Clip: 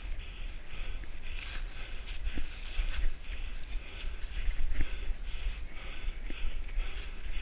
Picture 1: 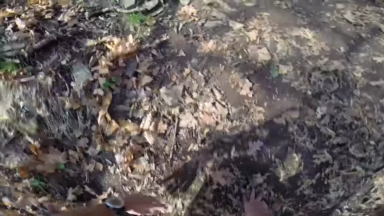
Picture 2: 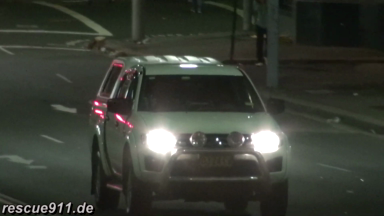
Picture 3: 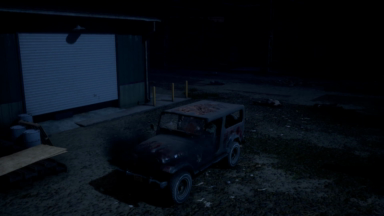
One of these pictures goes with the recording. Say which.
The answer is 1